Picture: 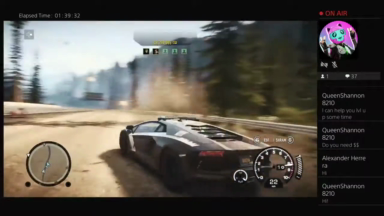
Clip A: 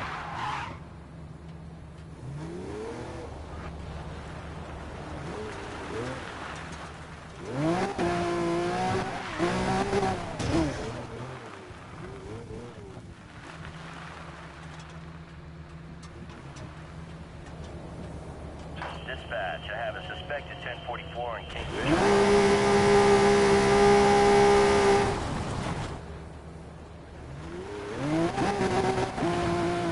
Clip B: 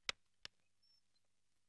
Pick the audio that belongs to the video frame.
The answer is A